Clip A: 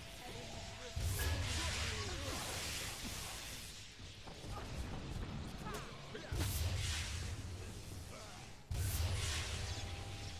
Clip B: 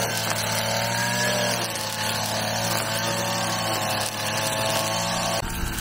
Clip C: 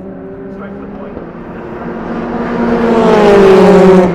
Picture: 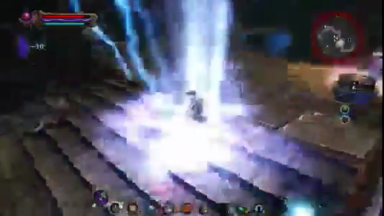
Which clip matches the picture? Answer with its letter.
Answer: A